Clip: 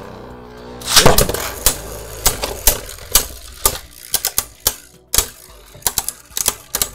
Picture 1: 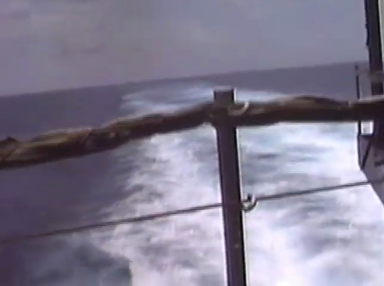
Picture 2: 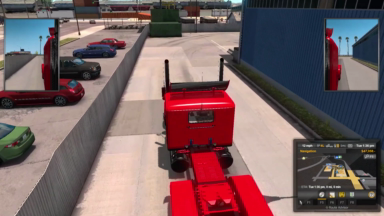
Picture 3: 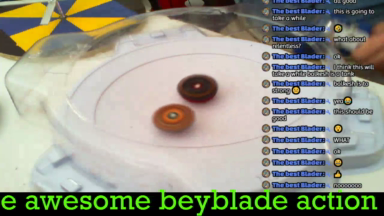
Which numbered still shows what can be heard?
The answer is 3